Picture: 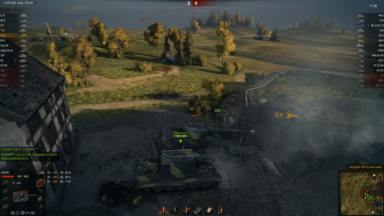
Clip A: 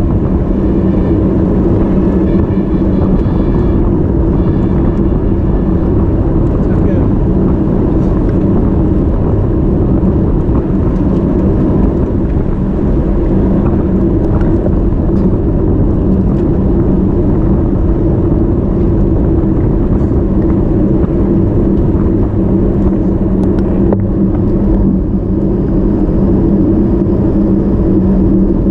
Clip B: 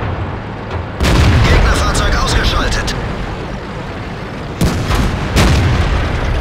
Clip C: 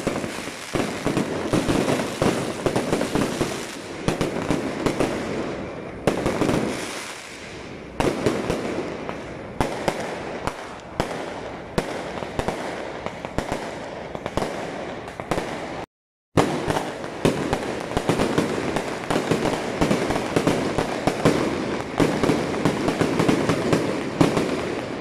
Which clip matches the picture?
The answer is B